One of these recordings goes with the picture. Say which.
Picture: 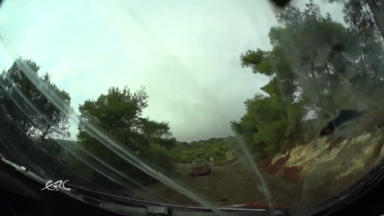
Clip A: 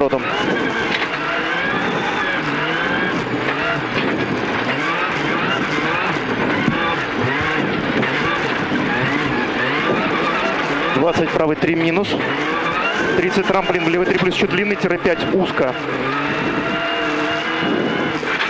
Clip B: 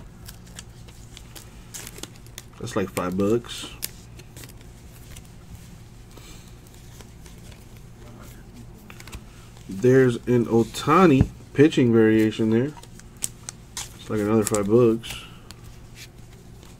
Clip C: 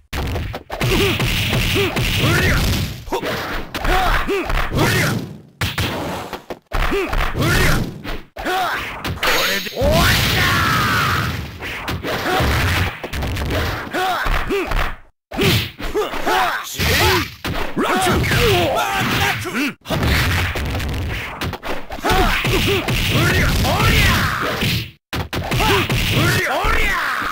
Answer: A